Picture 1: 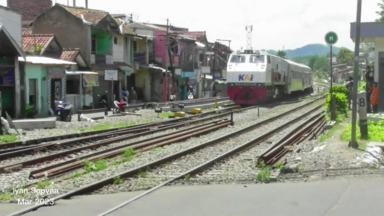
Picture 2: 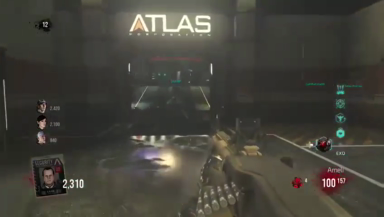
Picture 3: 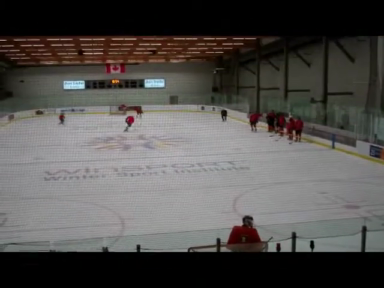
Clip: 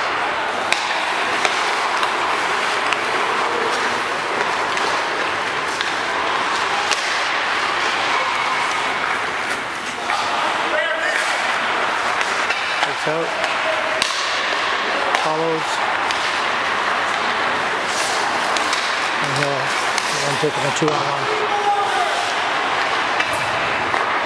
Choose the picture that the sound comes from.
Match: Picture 3